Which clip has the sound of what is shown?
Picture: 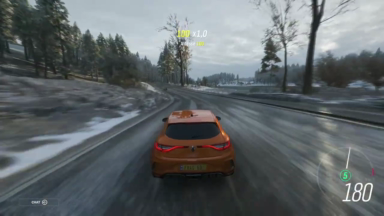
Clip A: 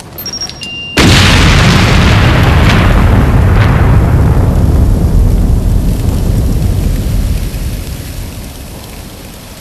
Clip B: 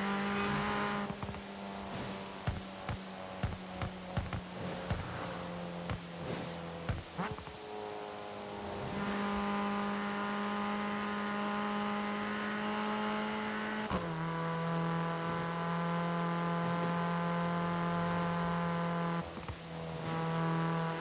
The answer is B